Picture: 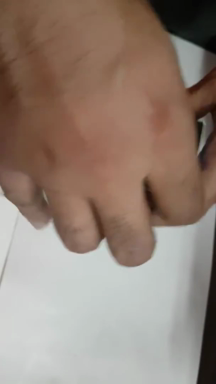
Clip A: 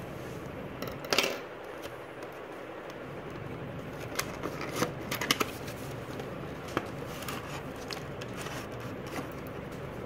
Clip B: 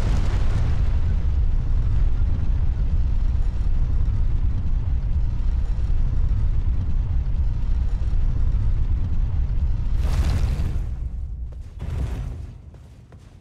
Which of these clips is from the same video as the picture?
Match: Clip A